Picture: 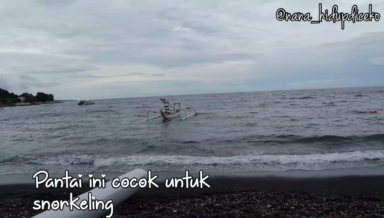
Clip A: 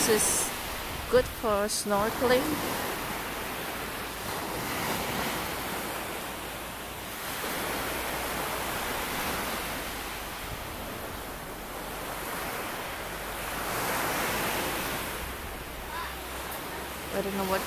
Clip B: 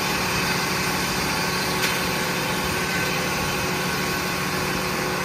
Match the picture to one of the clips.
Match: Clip A